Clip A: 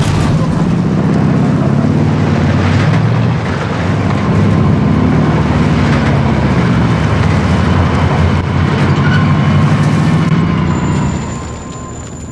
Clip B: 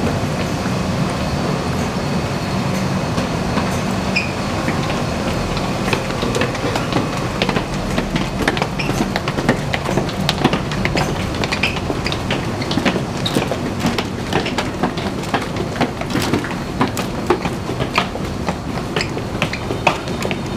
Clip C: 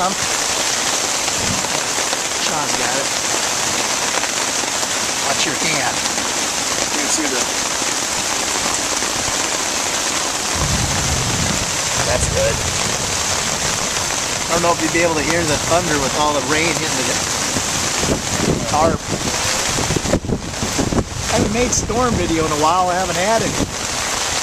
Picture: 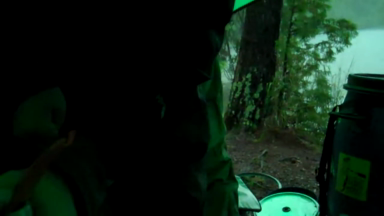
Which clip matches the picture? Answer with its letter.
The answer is C